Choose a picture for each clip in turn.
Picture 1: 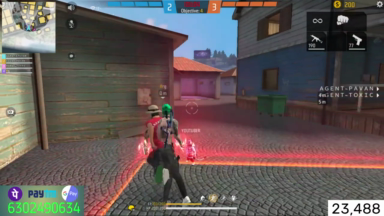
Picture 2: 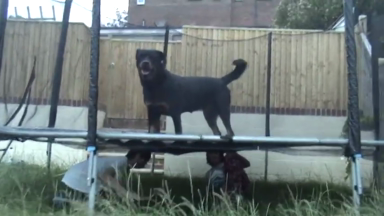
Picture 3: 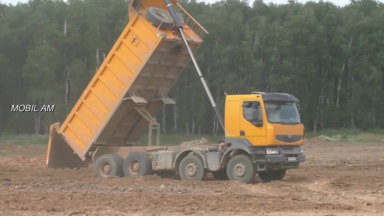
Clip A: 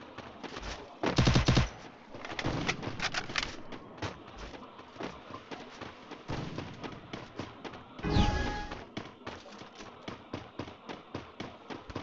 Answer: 1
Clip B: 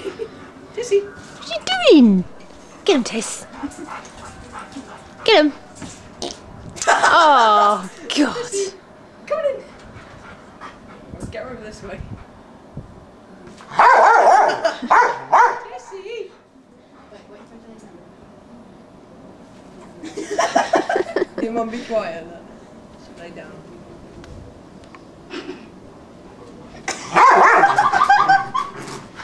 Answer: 2